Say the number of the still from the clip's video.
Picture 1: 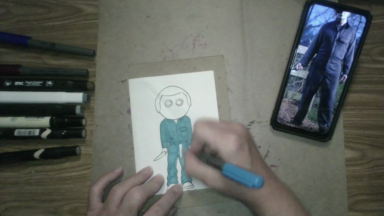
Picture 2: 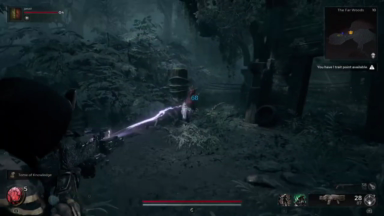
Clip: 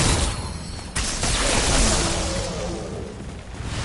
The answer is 2